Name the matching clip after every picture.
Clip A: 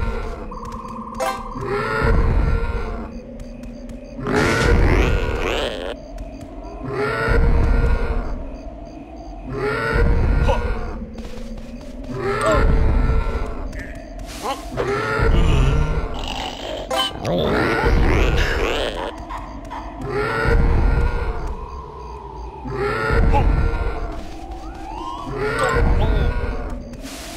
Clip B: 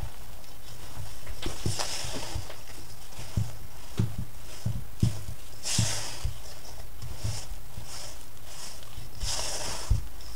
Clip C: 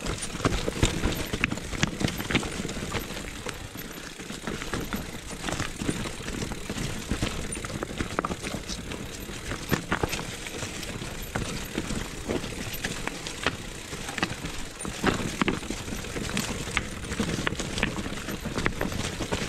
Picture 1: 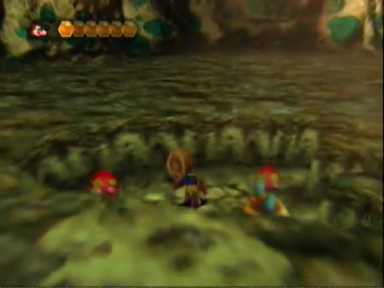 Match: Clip A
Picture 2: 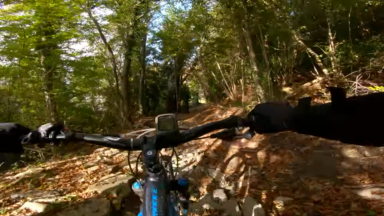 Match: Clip C